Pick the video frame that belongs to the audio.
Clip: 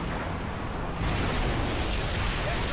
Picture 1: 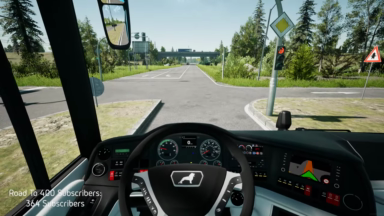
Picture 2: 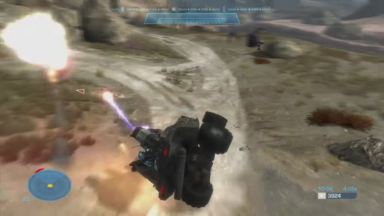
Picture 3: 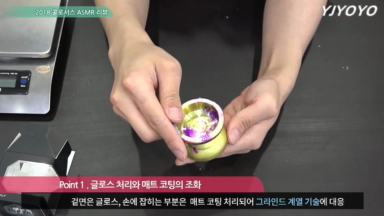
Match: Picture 2